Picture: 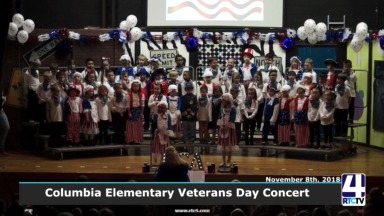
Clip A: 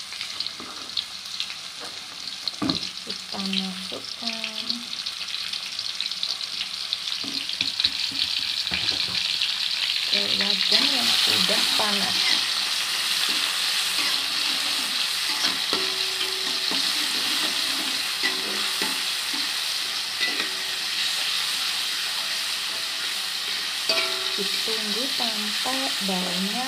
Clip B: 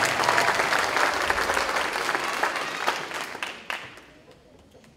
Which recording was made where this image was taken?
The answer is B